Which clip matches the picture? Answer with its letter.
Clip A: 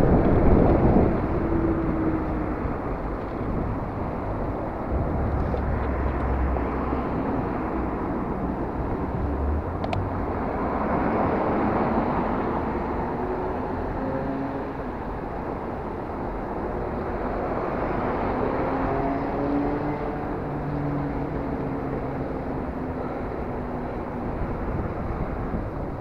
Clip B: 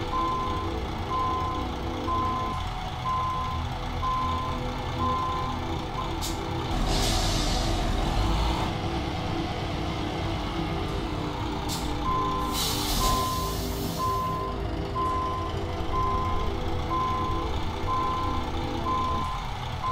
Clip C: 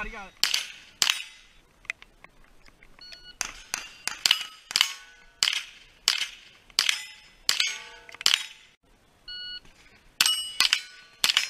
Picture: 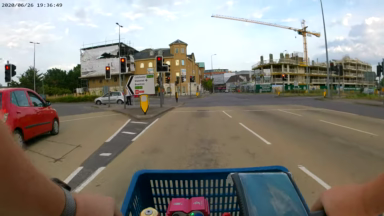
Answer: A